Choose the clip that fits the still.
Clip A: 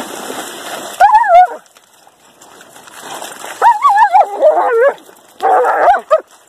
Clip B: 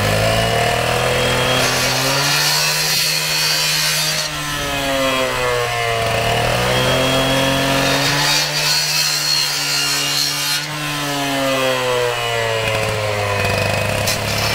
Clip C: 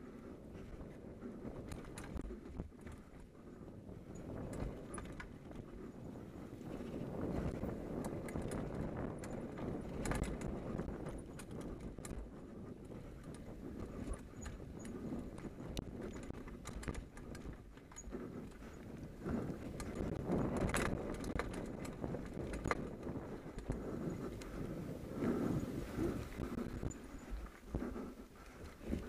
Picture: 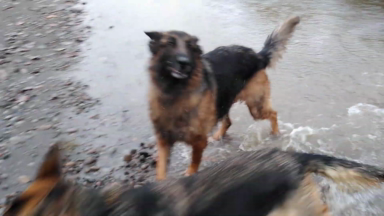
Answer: A